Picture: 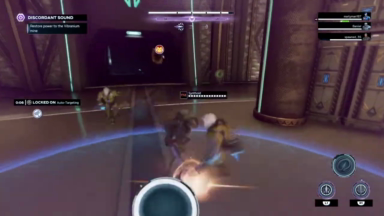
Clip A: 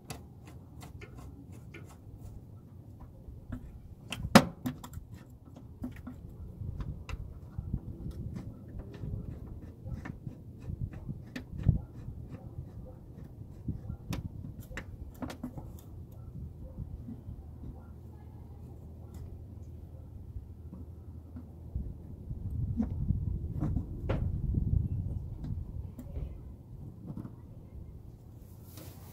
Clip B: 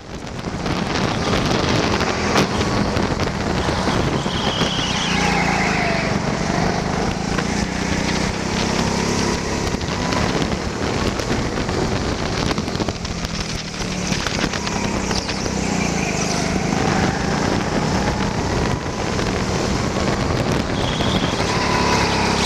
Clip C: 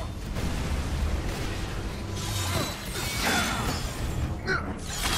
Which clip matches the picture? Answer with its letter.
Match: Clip C